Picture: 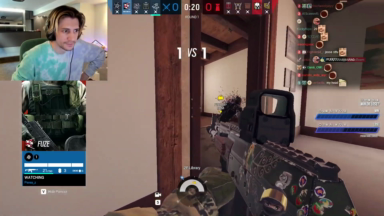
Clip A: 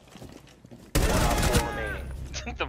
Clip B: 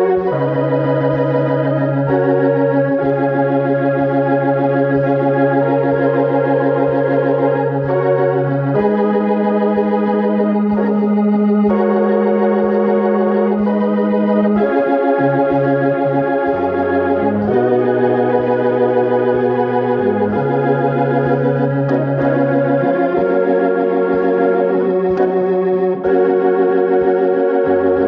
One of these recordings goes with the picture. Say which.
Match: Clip A